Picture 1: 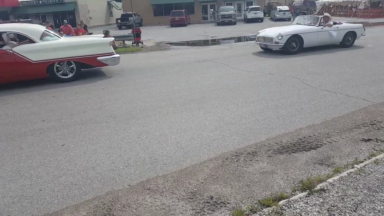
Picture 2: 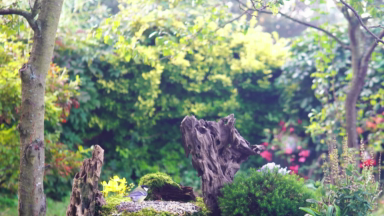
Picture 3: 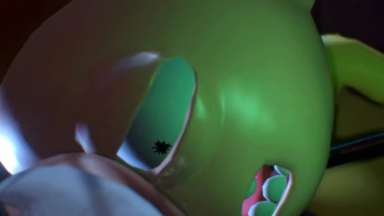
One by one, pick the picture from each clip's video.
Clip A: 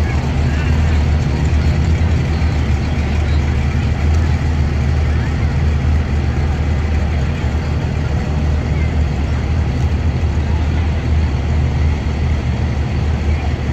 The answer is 1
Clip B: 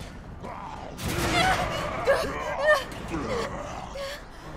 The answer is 3